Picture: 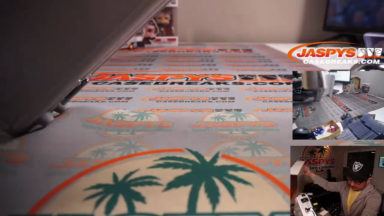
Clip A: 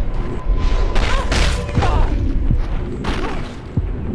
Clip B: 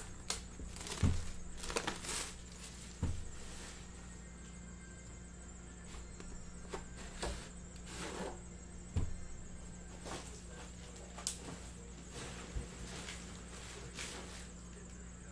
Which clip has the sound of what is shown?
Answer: B